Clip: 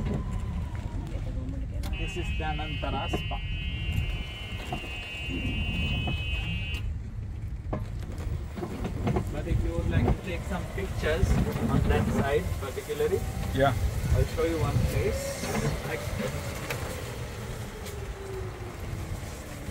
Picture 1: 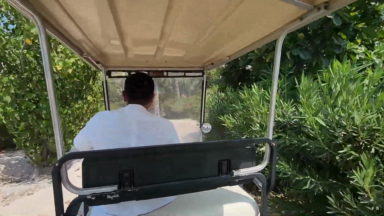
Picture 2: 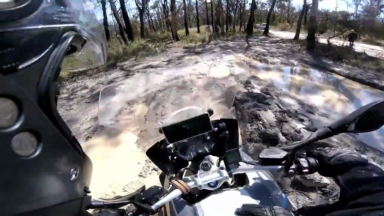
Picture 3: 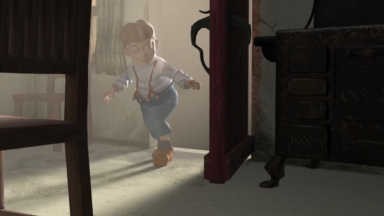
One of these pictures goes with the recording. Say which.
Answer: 1